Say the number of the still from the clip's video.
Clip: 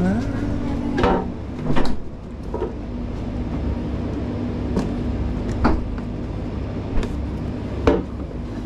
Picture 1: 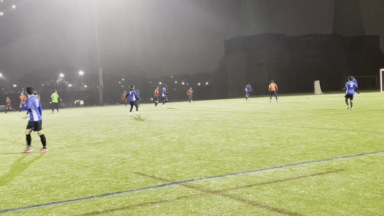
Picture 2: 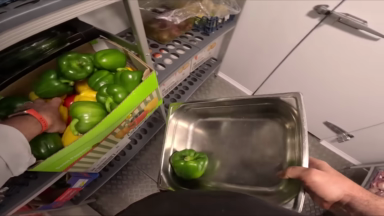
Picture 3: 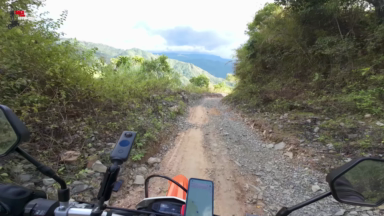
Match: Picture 2